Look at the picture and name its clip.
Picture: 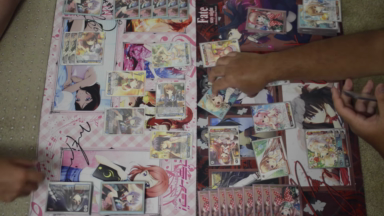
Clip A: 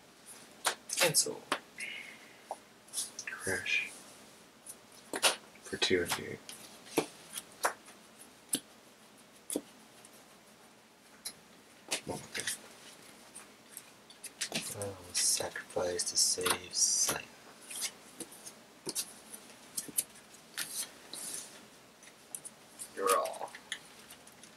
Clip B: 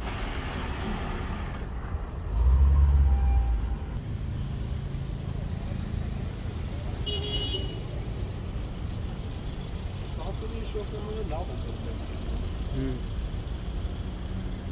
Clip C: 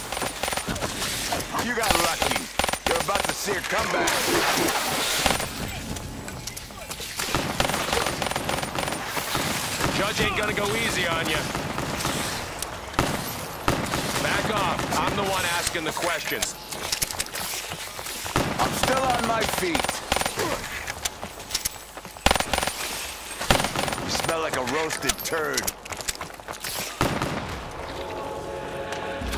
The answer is A